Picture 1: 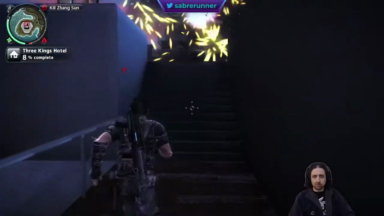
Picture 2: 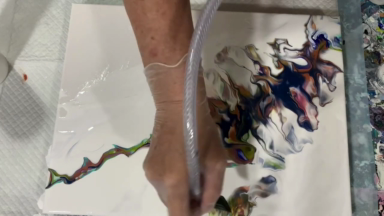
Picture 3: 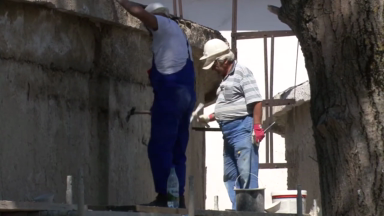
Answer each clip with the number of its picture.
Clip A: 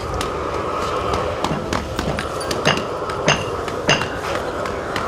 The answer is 3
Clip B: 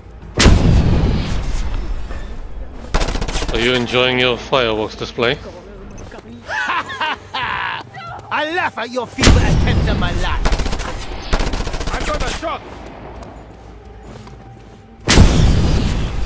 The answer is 1